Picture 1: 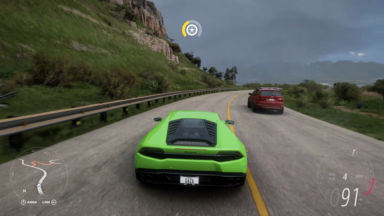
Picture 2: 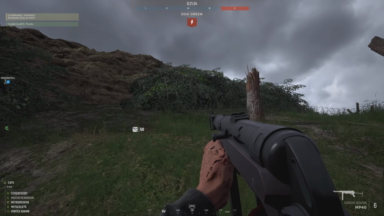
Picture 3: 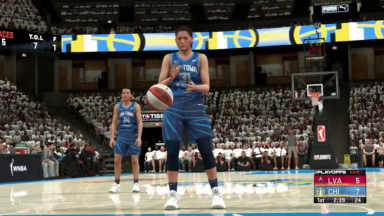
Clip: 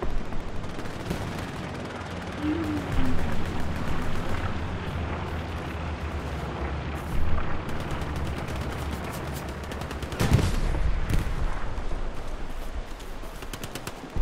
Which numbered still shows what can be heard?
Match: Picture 2